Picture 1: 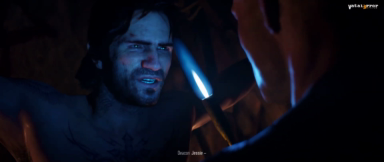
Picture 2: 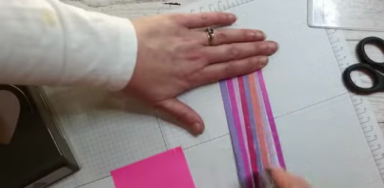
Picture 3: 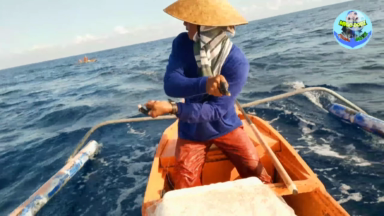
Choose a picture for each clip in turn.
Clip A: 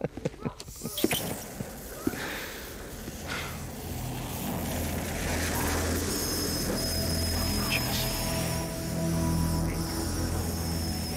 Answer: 1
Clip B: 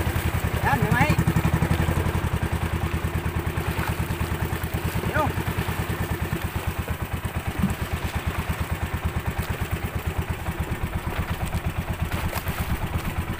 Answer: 3